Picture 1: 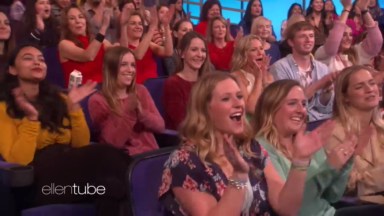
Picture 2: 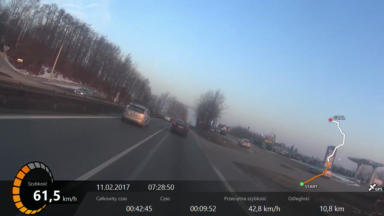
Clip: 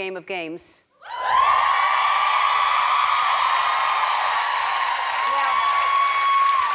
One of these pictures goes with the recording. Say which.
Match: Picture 1